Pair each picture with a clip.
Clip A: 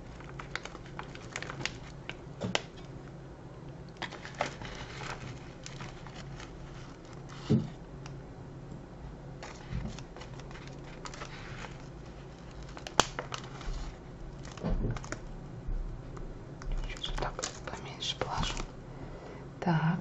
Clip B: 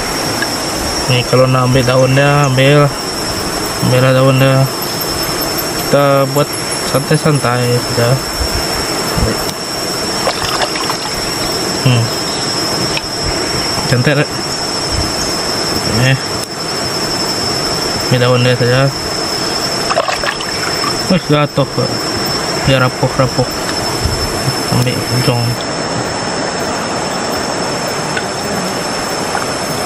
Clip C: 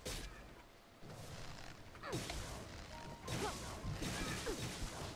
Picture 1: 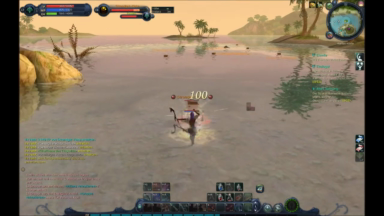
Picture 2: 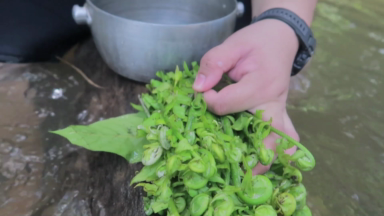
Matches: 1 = C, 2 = B